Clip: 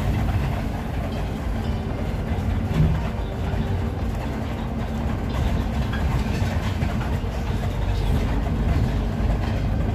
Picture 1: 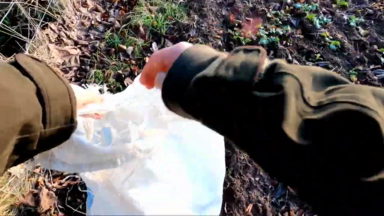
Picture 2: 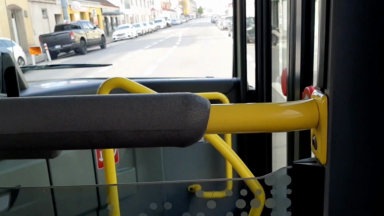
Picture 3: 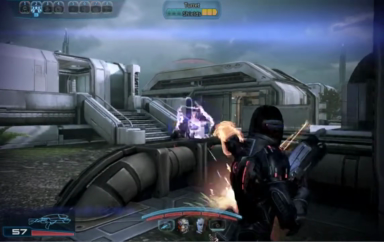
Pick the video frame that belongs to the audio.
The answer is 2